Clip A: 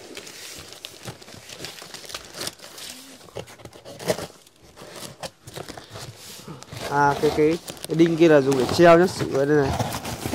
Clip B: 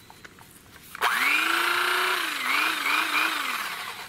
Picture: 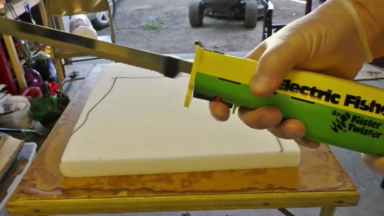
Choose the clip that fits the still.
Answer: B